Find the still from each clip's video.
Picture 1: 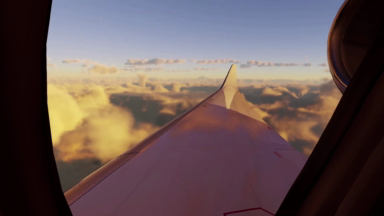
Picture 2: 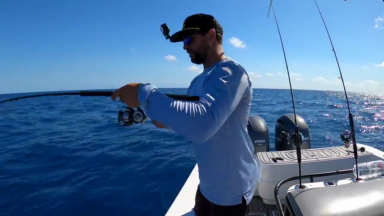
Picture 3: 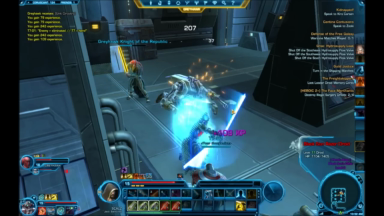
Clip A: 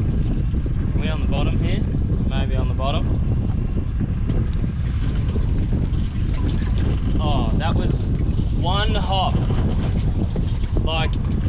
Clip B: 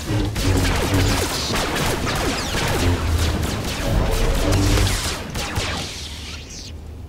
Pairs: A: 2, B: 3